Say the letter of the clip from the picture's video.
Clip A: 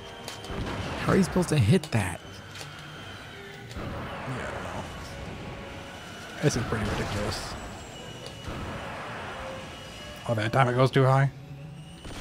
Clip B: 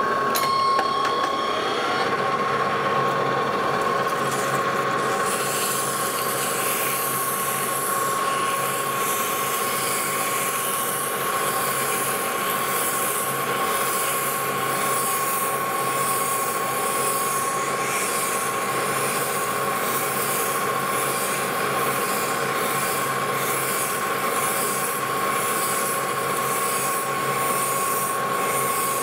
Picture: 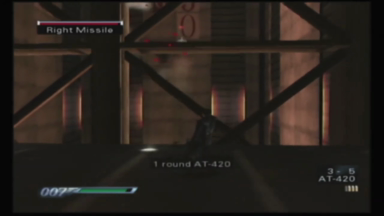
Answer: A